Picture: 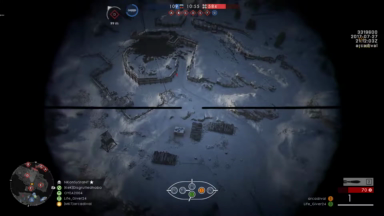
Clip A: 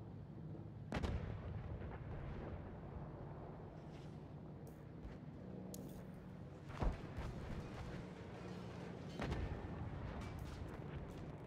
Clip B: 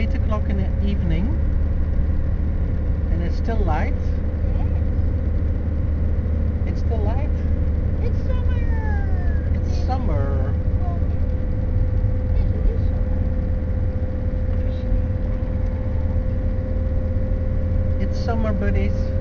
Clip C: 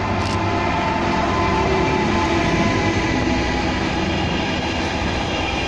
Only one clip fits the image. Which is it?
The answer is A